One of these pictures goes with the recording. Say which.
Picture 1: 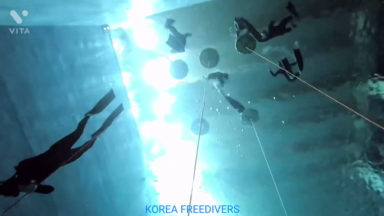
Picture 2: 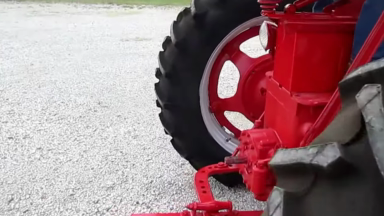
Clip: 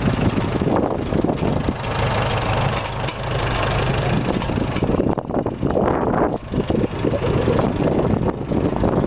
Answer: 2